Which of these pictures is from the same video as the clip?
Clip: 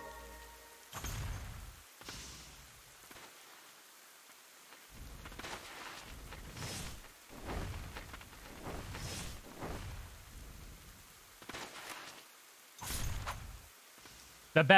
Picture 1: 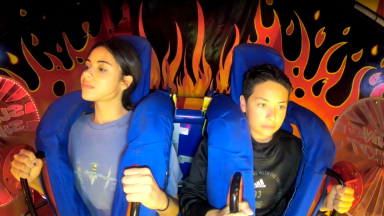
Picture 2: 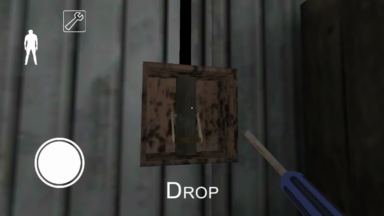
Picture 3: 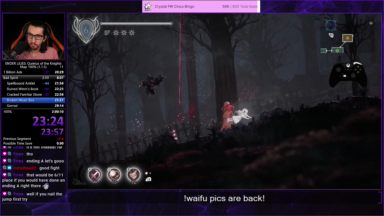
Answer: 3